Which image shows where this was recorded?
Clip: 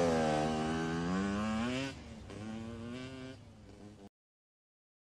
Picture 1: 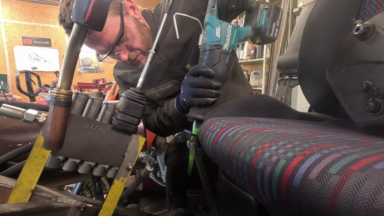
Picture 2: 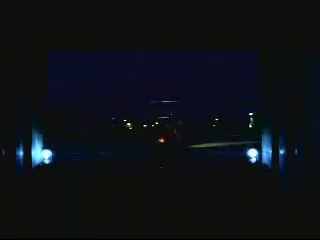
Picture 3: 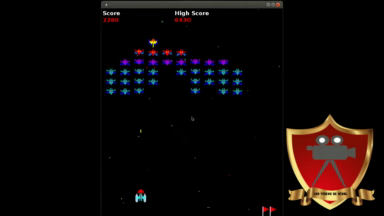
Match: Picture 2